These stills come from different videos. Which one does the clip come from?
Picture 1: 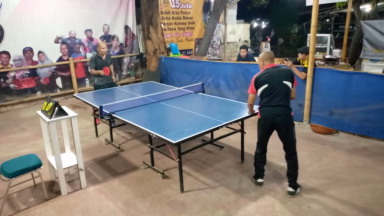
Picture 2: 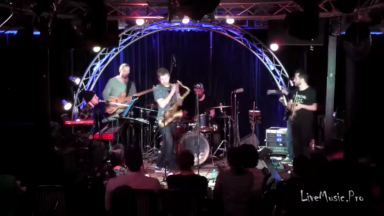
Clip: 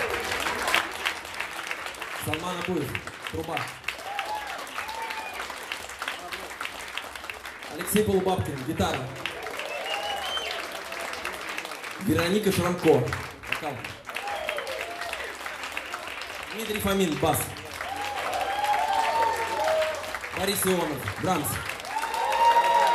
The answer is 2